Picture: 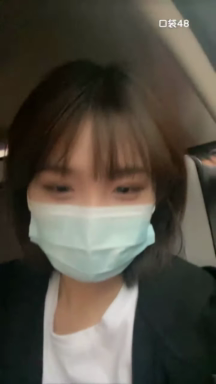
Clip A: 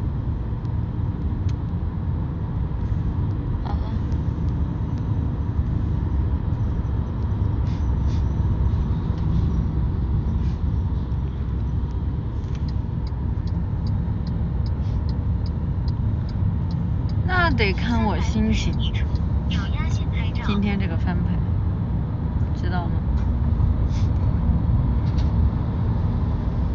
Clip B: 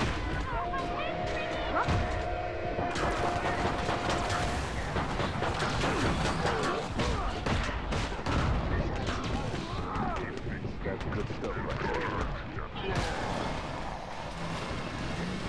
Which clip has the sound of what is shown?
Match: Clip A